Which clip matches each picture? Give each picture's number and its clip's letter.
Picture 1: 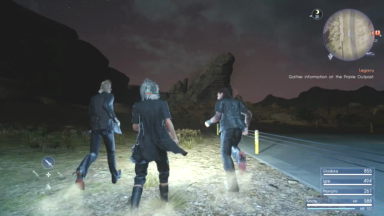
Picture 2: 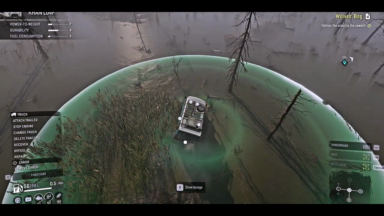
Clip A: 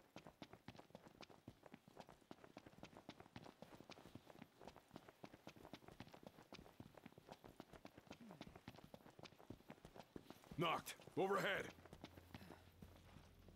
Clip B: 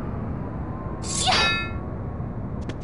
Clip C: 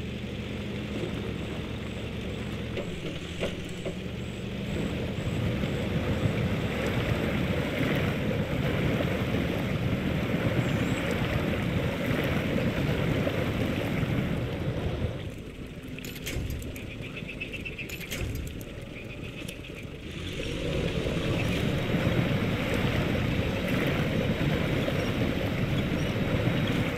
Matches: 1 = A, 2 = C